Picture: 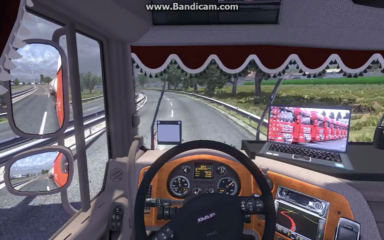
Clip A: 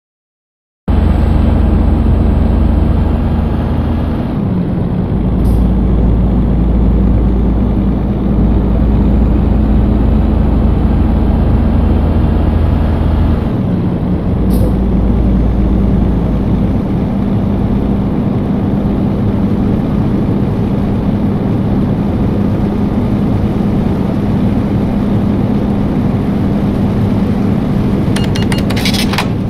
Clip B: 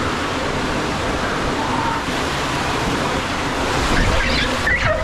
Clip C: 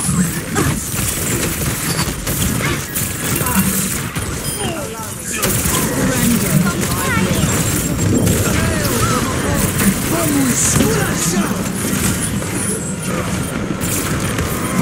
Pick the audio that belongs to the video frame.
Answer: A